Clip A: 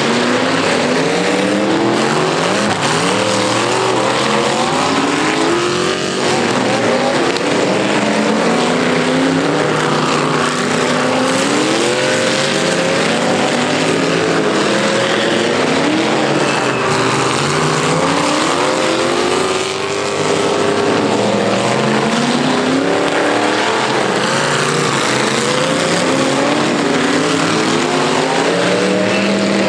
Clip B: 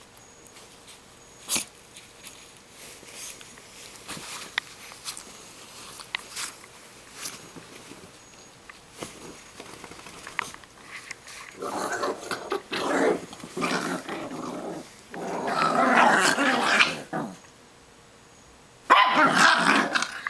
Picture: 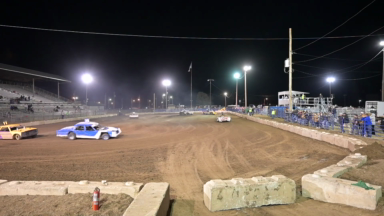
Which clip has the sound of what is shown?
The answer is A